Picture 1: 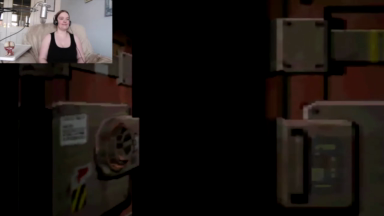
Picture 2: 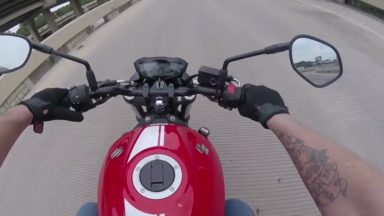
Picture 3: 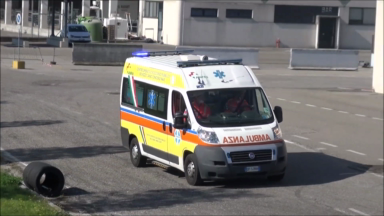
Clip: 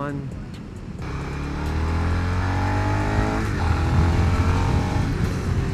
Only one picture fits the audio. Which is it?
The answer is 2